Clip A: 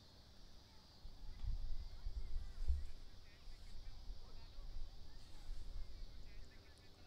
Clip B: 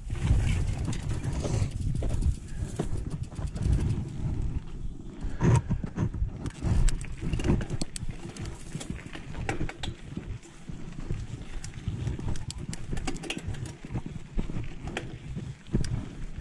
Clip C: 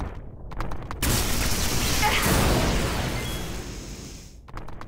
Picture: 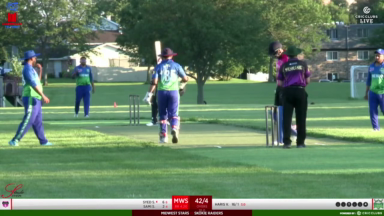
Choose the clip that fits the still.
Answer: A